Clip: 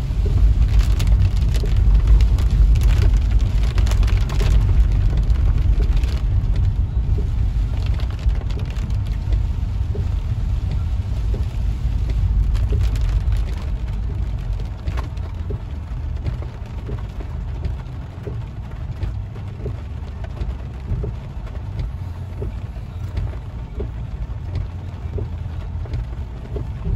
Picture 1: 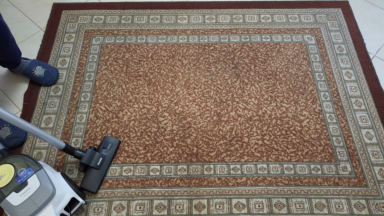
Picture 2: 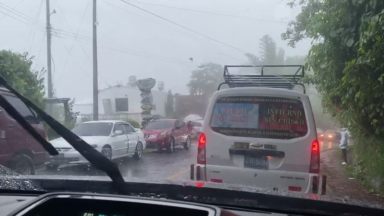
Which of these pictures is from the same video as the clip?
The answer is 2